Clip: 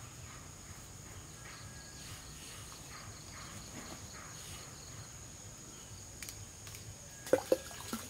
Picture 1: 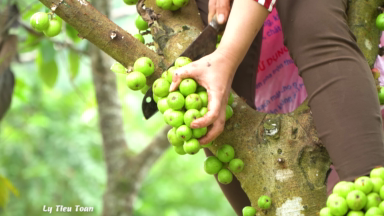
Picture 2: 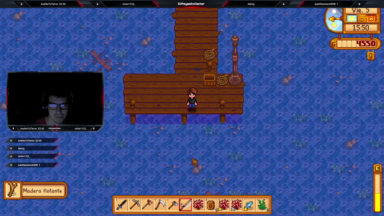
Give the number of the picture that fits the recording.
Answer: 1